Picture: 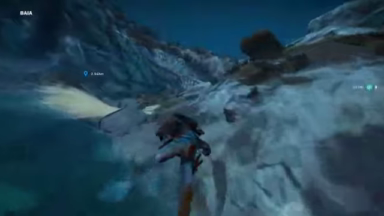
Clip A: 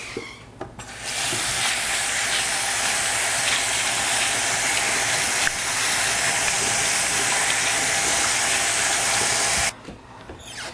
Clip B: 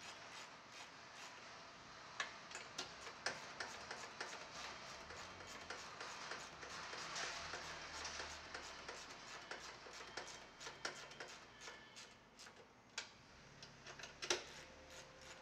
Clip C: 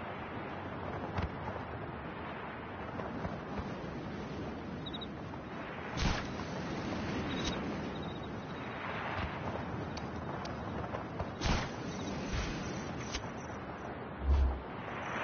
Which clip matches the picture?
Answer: C